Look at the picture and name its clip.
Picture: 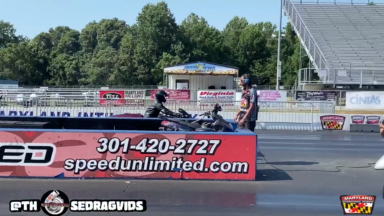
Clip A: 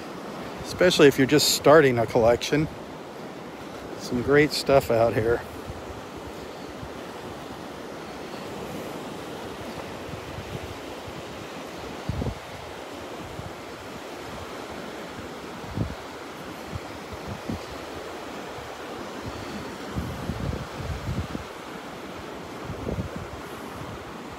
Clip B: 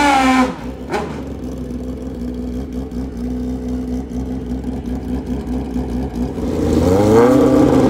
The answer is B